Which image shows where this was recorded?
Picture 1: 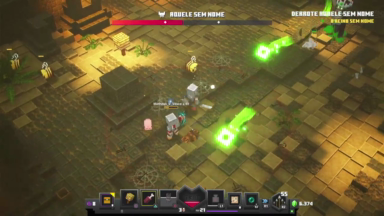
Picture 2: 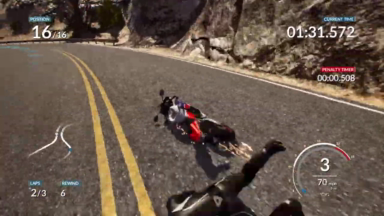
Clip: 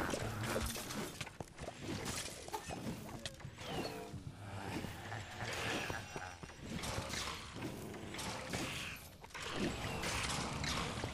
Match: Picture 1